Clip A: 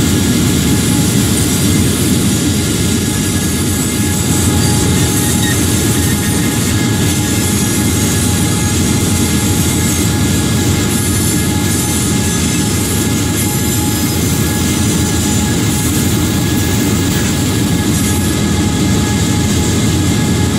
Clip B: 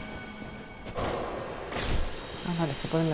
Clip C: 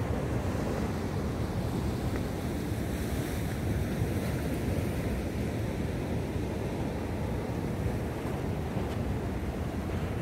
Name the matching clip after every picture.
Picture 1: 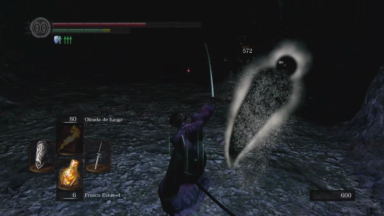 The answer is B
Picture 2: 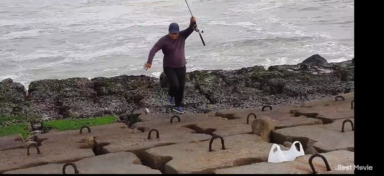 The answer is C